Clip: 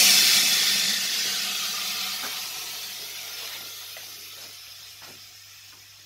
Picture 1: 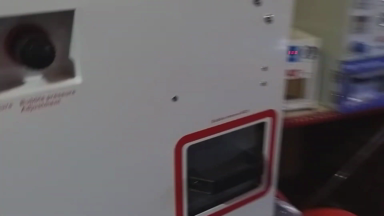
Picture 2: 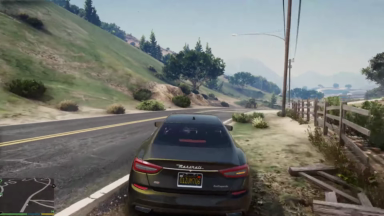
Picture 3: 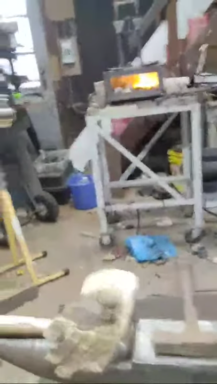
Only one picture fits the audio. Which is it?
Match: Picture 1